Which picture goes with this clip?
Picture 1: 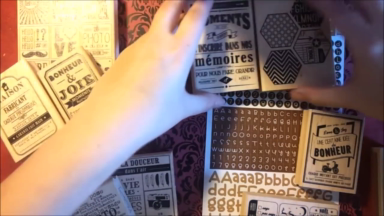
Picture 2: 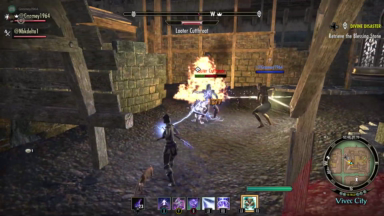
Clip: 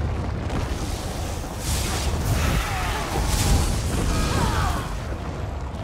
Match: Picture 2